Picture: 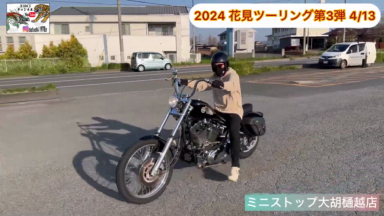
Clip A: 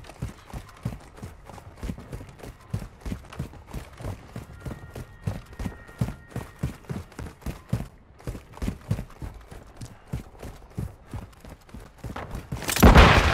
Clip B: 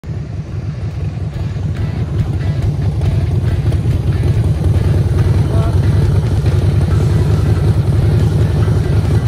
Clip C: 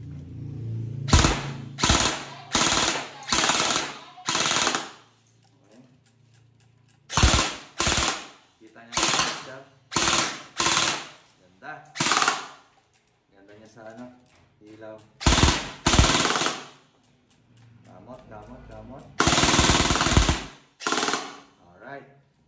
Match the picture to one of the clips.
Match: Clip B